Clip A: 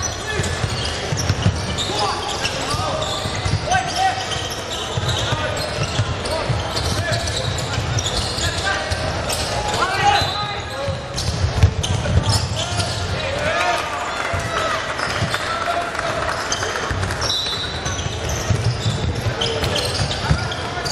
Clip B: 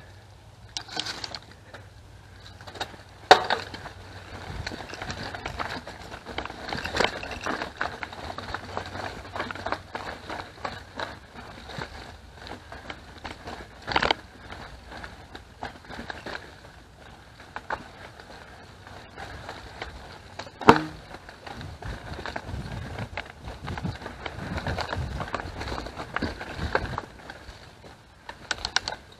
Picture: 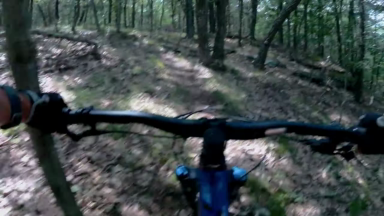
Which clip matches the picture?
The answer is B